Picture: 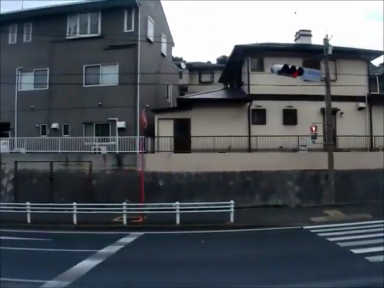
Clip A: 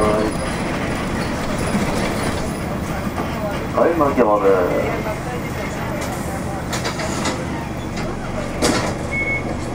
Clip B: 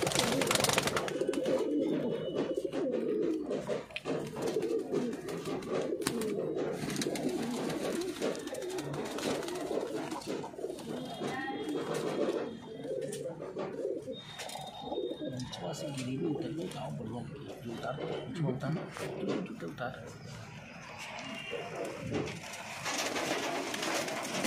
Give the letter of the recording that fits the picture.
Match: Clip A